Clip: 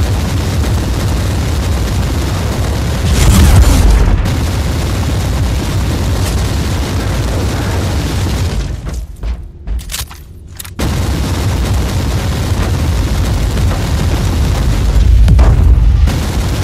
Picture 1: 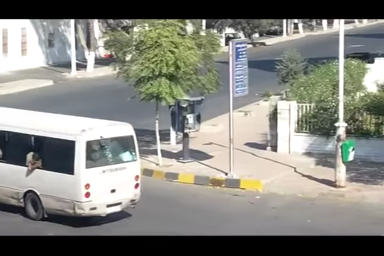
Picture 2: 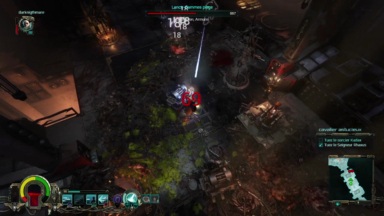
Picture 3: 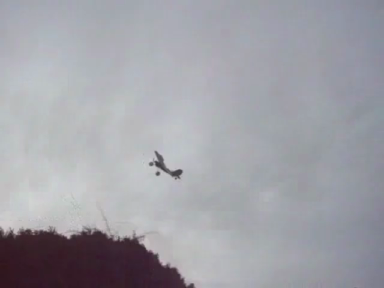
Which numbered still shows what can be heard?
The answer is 2